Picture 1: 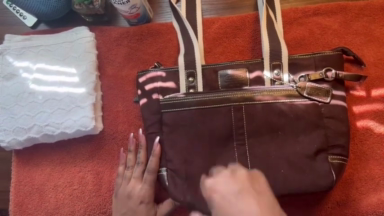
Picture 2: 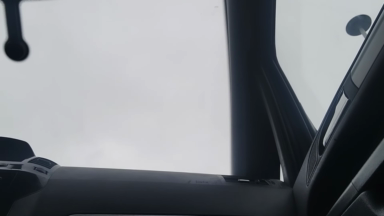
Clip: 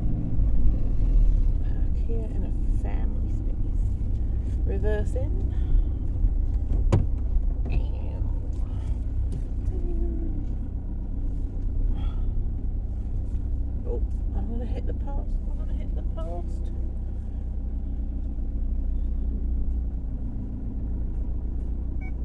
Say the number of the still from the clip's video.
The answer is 2